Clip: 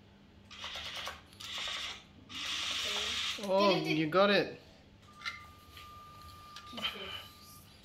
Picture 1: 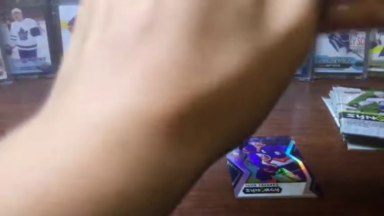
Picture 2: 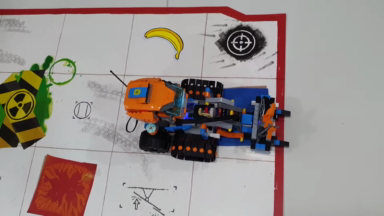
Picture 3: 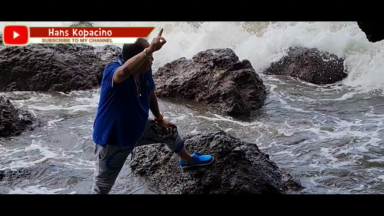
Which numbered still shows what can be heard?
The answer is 2